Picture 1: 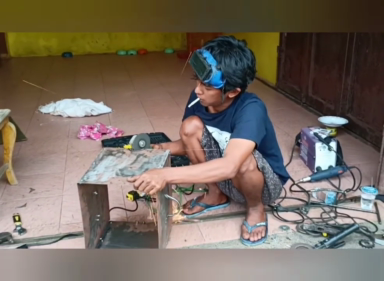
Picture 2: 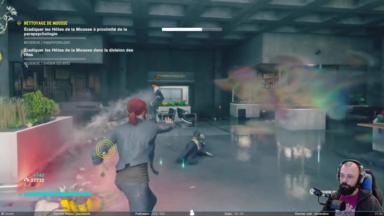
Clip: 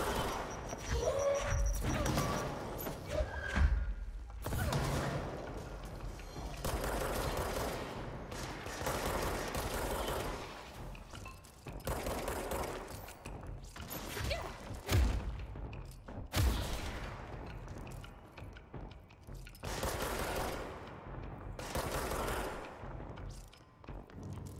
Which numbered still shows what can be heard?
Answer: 2